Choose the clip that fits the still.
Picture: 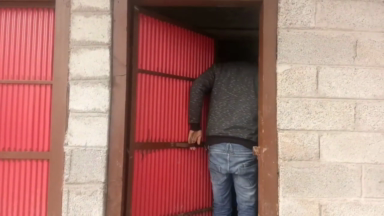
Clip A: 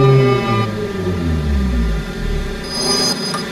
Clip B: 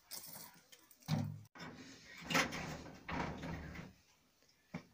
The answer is B